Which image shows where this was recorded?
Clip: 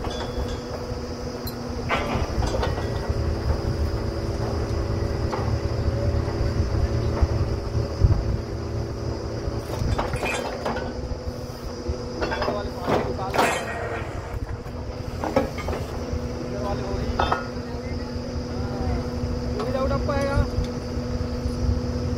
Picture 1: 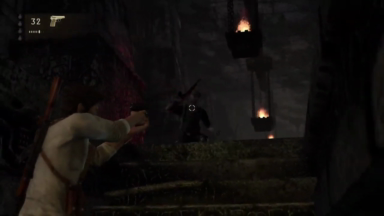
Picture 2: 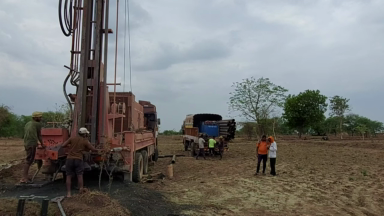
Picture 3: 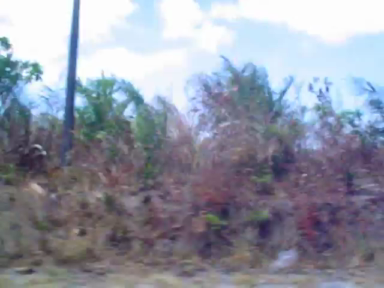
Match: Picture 2